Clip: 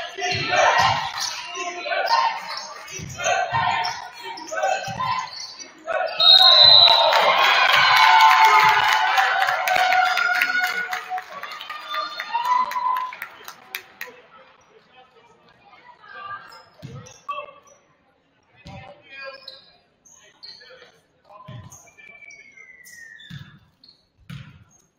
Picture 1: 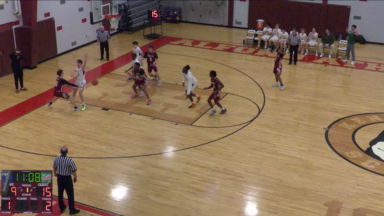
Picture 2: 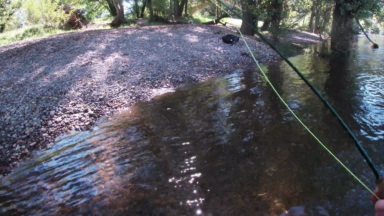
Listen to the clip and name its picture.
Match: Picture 1